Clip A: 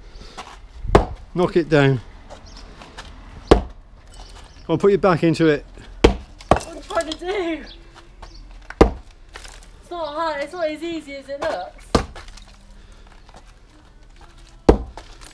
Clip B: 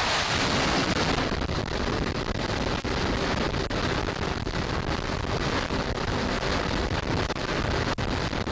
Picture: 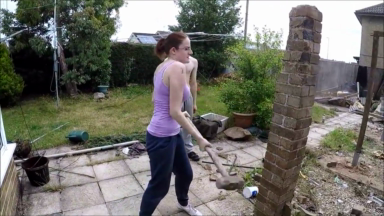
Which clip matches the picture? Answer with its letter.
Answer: A